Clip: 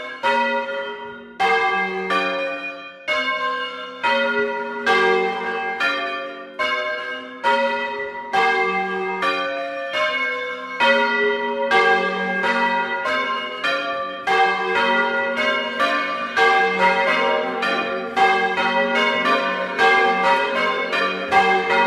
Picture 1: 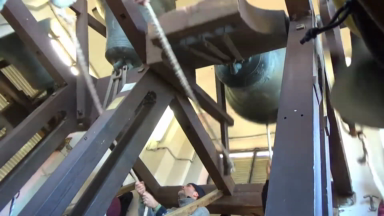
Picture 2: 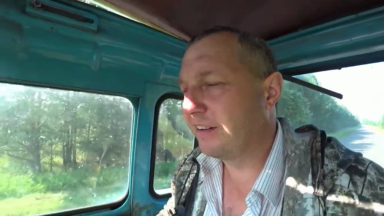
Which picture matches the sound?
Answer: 1